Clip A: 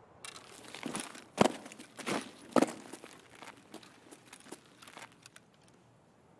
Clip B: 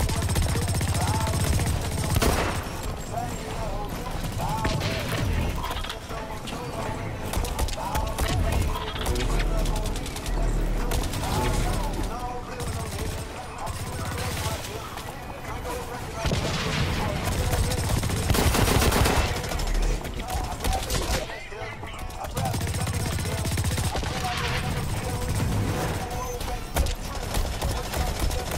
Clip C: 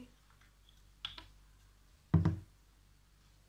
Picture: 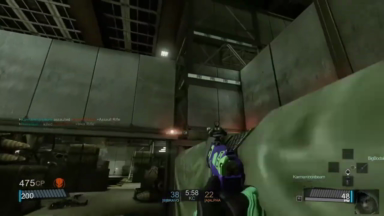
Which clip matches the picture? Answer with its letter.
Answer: B